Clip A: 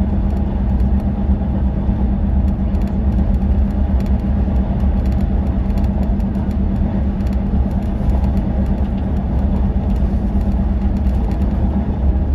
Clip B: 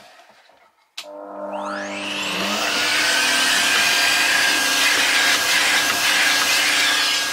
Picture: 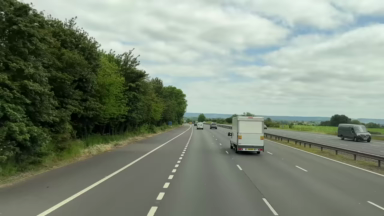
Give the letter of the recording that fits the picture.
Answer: A